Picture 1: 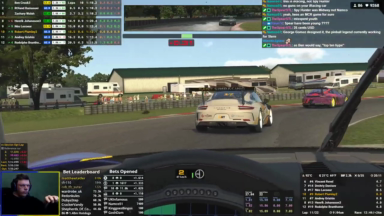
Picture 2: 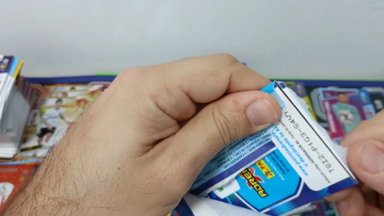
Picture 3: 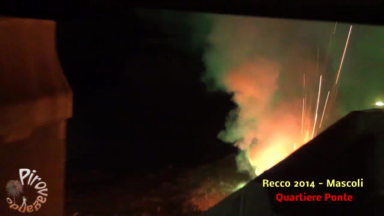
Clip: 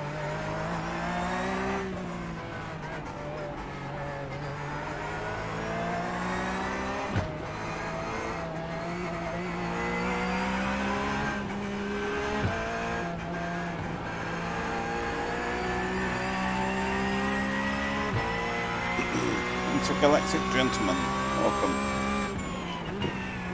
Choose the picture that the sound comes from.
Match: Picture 1